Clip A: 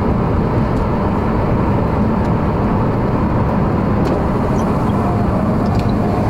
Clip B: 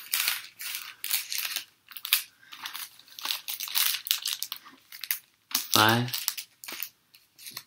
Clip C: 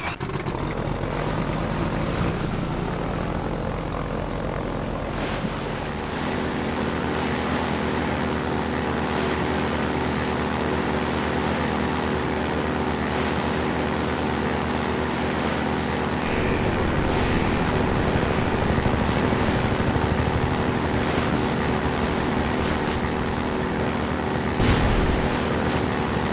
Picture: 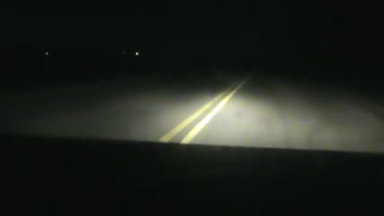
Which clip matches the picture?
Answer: A